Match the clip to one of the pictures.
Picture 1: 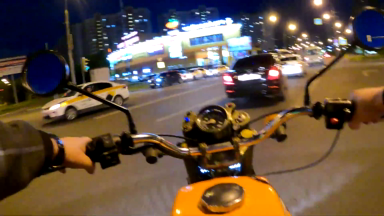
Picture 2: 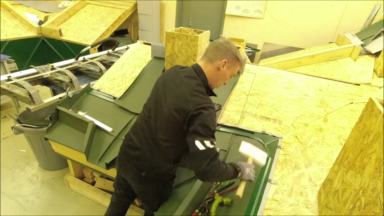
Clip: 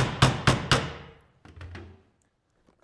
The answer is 2